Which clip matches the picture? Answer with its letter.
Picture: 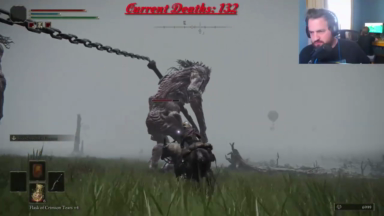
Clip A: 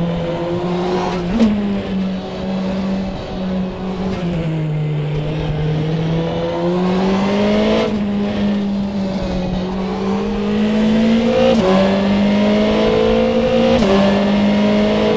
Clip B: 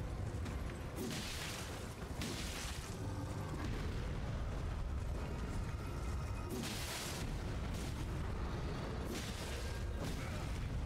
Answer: B